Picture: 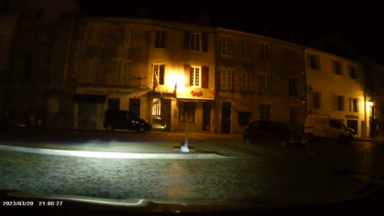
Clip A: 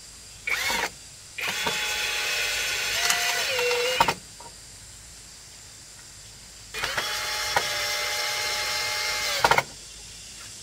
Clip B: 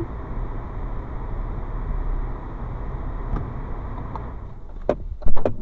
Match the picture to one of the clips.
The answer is B